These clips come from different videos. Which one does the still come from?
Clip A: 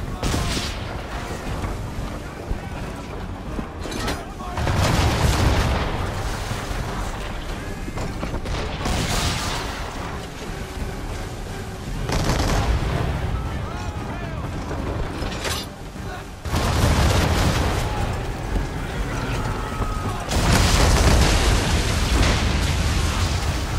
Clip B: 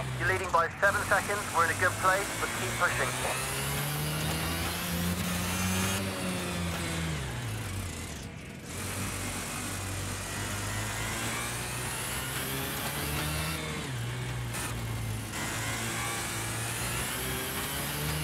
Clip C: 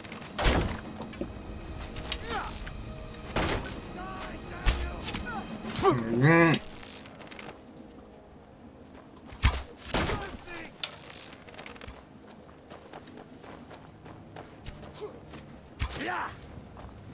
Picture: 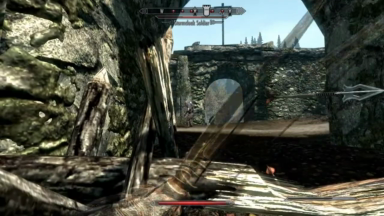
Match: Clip C